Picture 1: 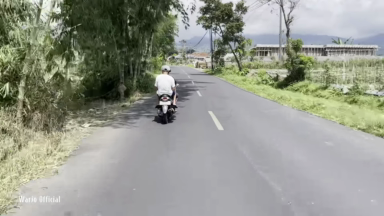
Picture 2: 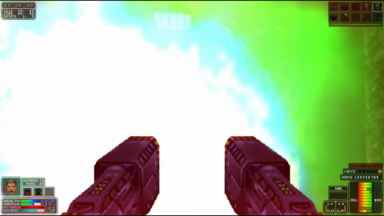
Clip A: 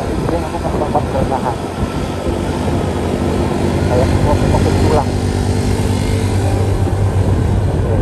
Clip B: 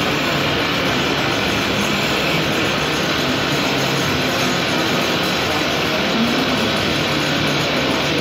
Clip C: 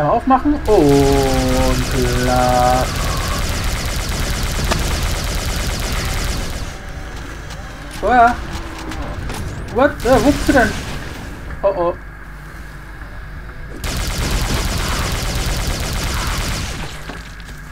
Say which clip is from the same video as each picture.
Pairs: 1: A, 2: C